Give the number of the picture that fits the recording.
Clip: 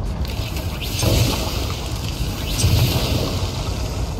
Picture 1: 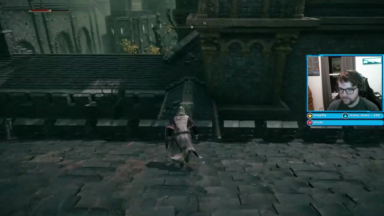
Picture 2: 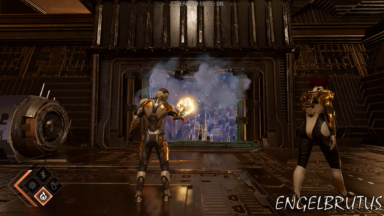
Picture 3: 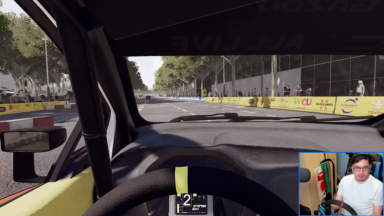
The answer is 2